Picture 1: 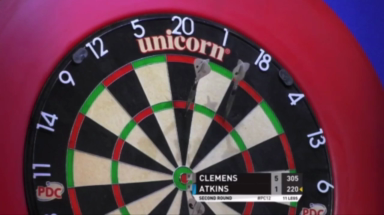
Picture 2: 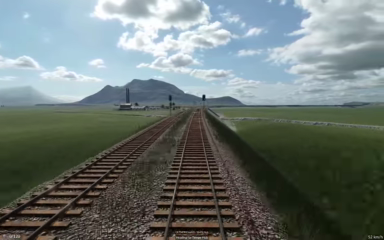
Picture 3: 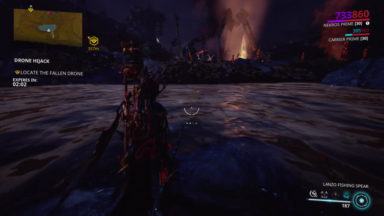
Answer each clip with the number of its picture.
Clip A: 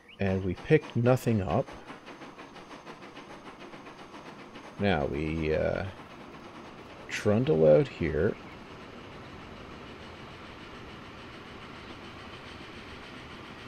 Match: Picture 2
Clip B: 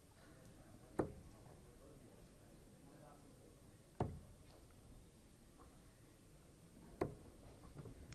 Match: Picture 1